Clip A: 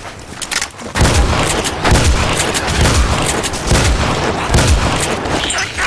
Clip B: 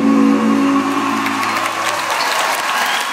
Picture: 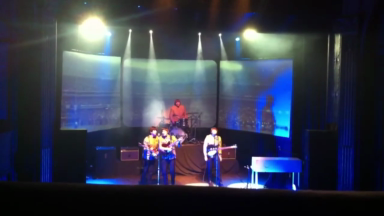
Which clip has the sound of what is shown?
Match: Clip B